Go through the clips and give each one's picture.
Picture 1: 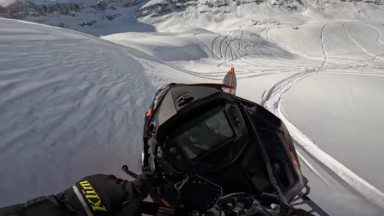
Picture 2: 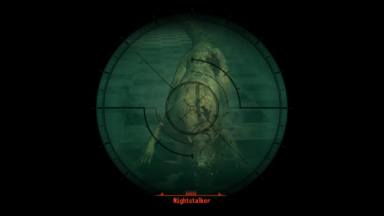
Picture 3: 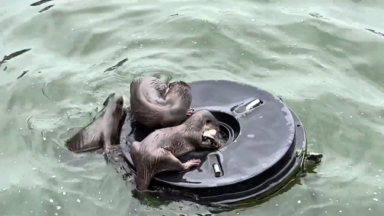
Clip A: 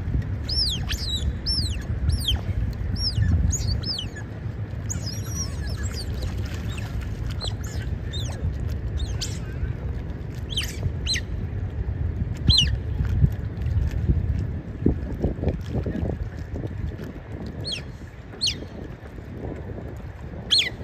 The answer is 3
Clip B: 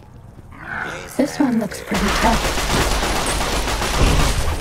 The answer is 2